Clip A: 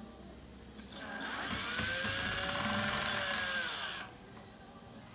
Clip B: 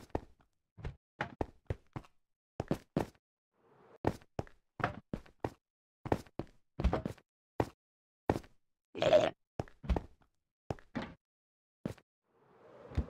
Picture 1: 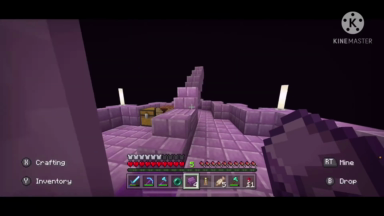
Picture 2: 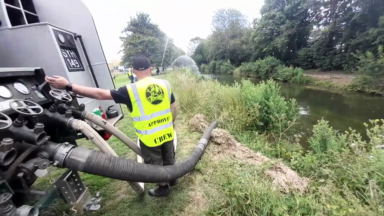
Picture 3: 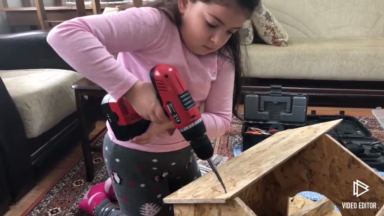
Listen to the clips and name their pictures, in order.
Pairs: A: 3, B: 1